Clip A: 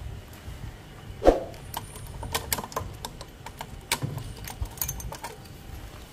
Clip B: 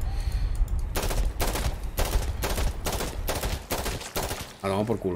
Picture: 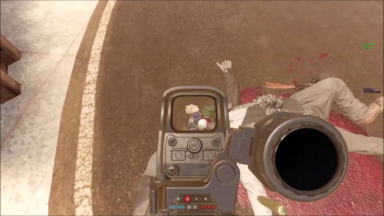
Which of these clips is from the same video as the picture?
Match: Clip B